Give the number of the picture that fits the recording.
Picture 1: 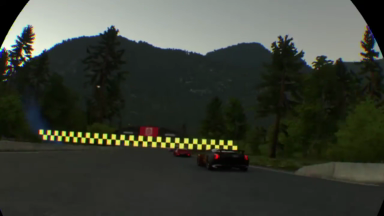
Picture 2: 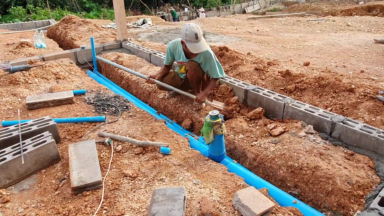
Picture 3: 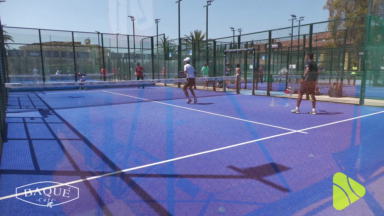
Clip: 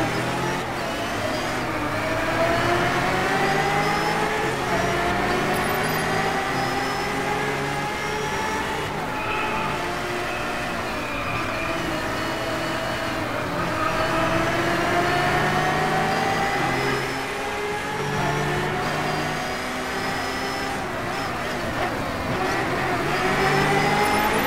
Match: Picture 1